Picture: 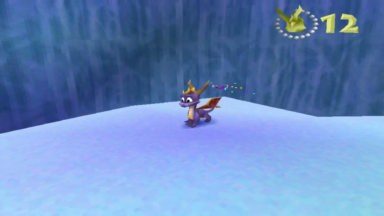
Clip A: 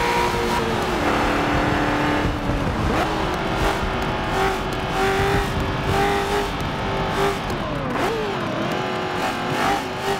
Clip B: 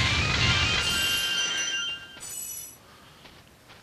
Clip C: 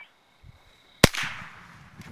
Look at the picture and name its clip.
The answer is B